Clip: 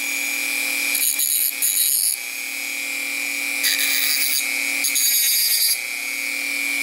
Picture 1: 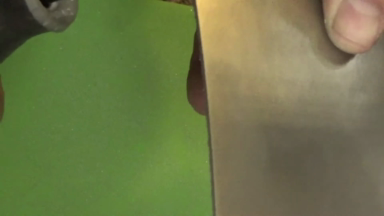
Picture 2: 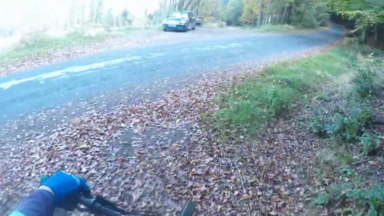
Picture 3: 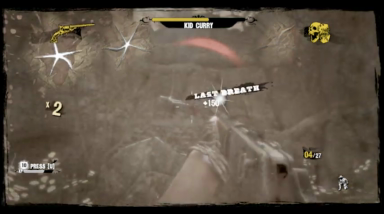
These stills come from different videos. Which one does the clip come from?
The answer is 1